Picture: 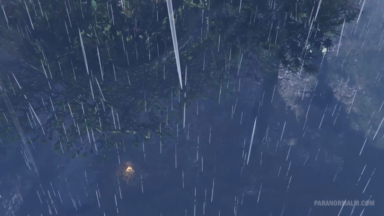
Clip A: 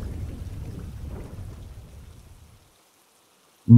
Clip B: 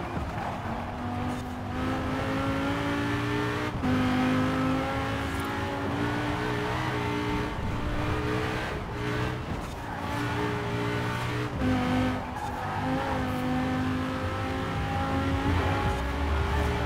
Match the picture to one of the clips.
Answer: A